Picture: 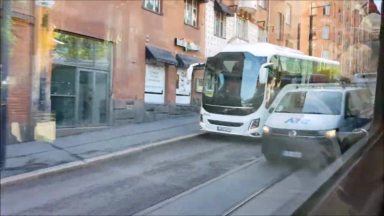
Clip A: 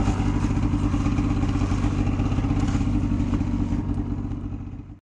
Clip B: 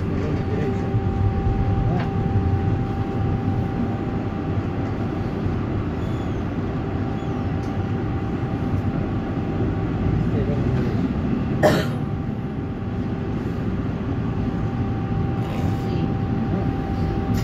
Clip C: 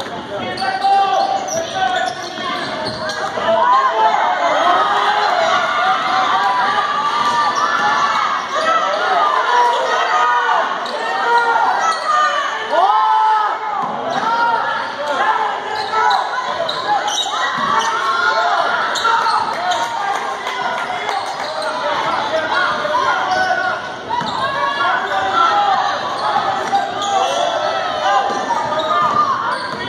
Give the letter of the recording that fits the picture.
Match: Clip B